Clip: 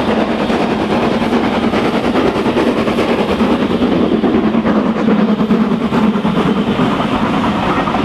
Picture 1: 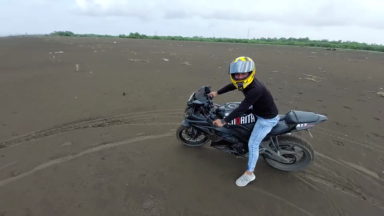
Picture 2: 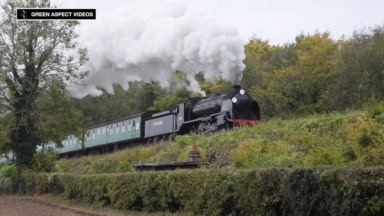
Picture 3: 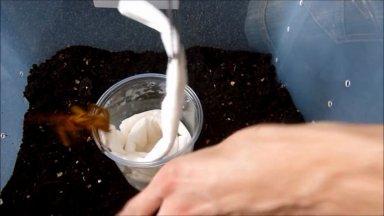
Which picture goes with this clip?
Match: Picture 2